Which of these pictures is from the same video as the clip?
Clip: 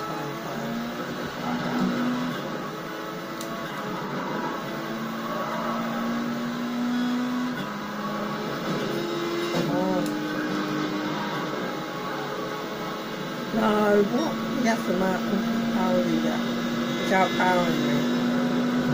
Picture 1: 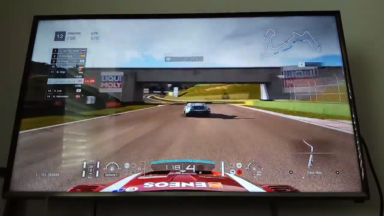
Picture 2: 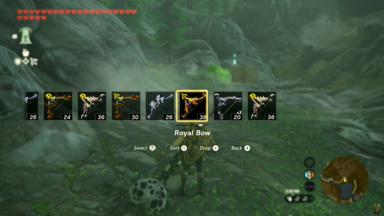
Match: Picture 1